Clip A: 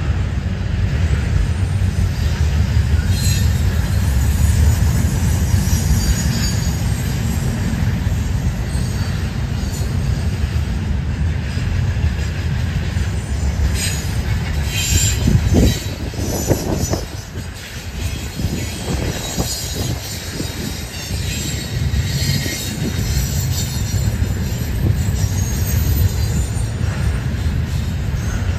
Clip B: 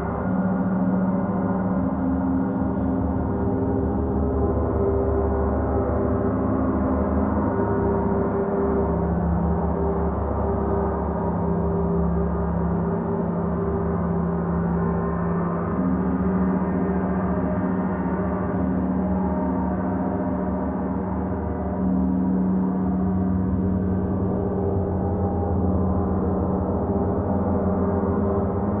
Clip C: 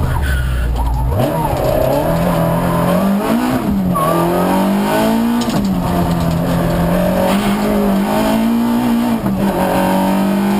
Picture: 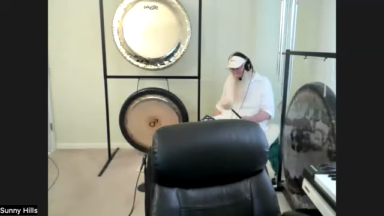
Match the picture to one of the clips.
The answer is B